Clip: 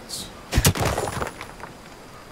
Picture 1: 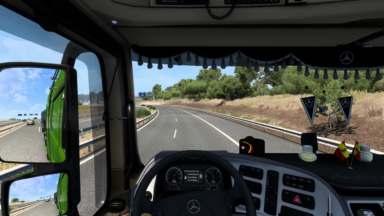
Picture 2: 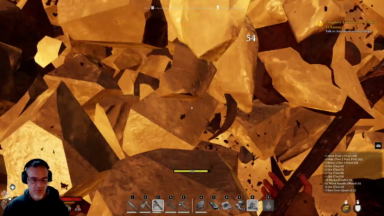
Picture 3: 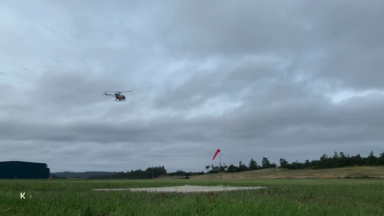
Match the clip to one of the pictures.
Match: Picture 2